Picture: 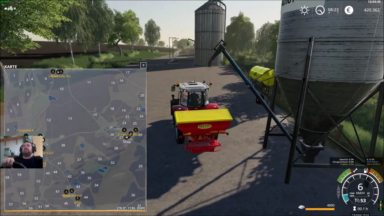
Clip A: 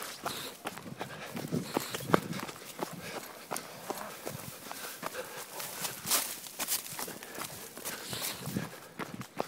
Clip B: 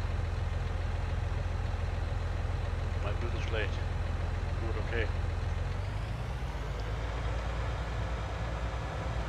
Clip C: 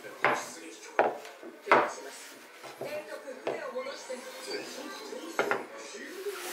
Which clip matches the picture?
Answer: B